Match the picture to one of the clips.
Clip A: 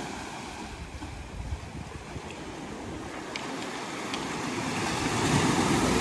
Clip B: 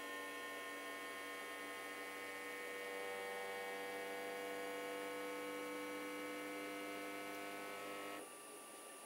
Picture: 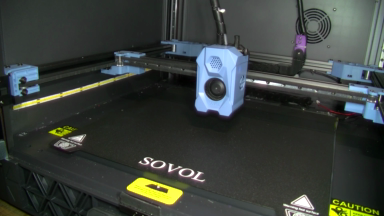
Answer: B